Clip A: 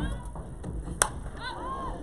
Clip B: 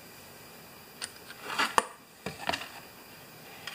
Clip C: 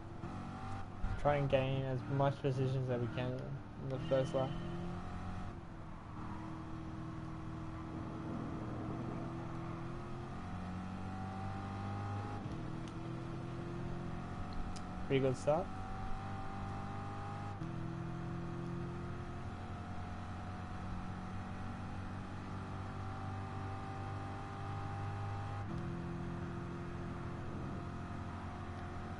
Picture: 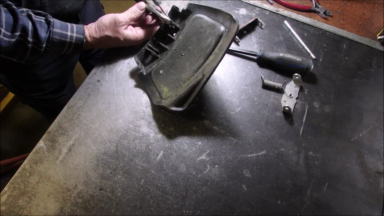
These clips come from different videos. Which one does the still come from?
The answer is B